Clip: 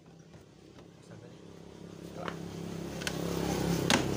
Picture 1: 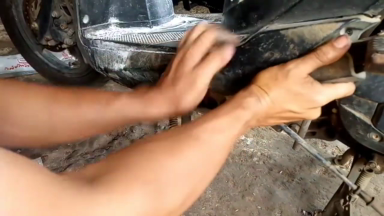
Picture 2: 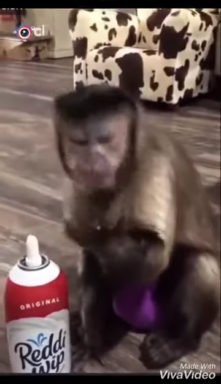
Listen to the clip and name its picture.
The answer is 1